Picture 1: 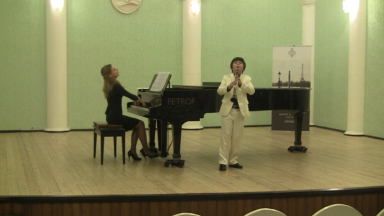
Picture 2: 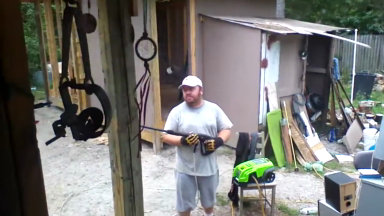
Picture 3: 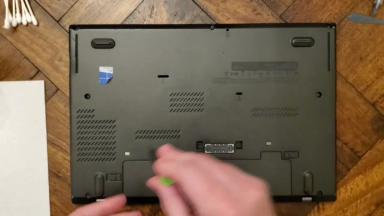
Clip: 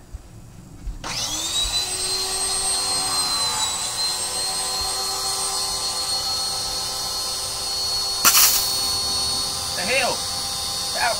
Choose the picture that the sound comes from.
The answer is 2